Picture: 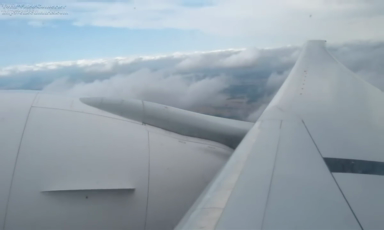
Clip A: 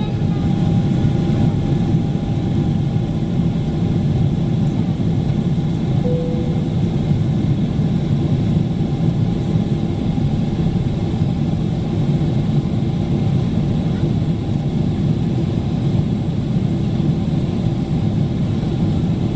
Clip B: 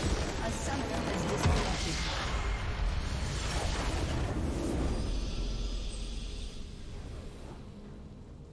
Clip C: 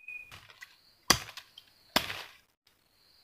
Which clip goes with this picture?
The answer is A